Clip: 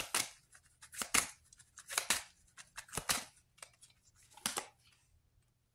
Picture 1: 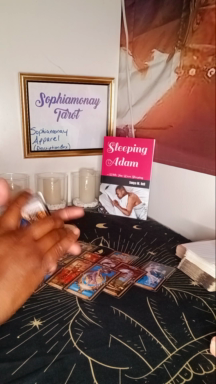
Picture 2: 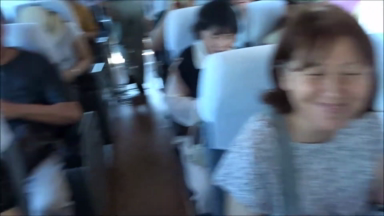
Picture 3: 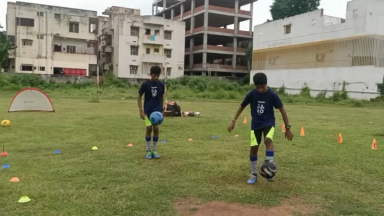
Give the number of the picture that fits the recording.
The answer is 1